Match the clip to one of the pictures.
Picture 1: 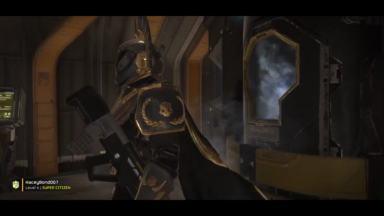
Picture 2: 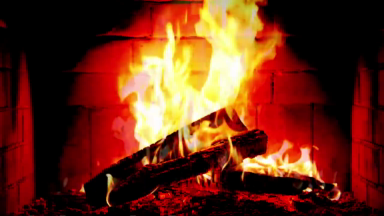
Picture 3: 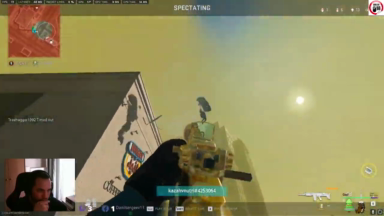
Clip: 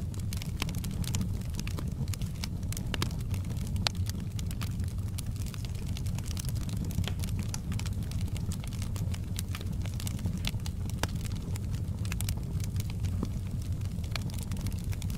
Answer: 2